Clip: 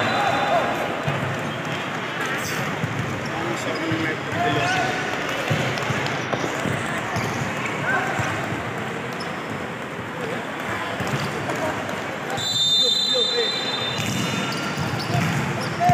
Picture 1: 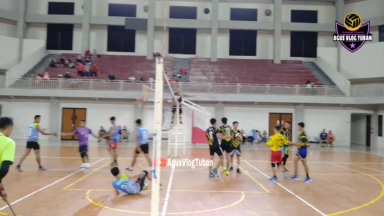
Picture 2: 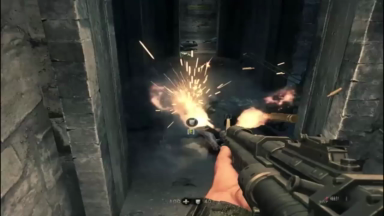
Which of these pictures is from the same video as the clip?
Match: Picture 1